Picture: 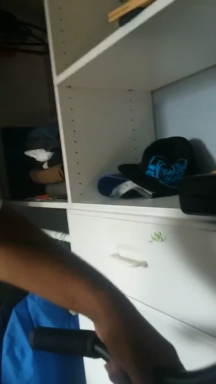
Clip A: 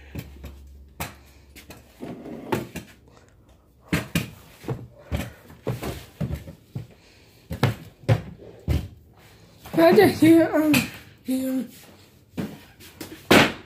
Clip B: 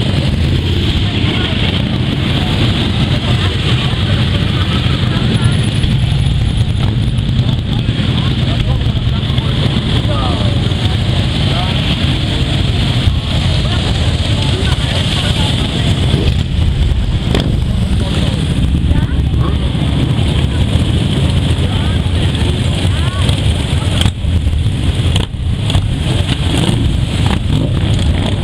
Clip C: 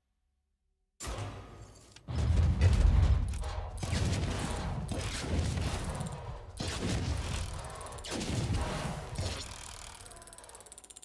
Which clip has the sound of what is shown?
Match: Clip A